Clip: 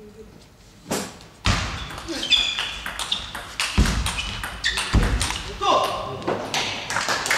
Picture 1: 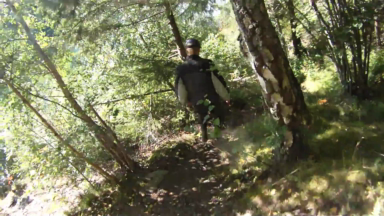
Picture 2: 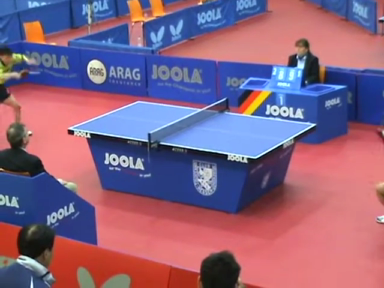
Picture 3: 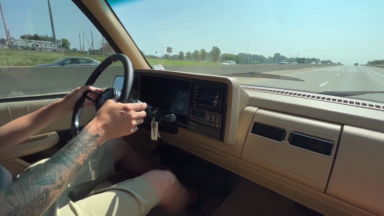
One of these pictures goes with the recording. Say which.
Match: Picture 2